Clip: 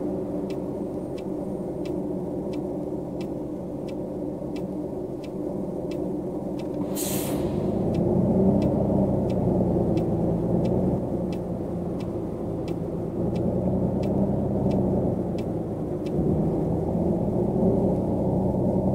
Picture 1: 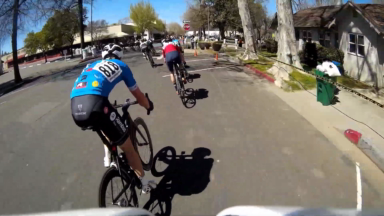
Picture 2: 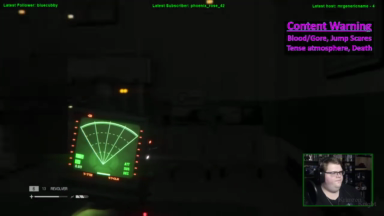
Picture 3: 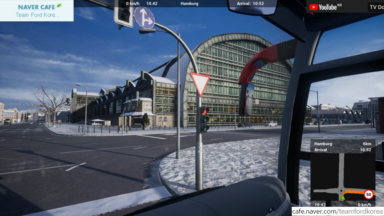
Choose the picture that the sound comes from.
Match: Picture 3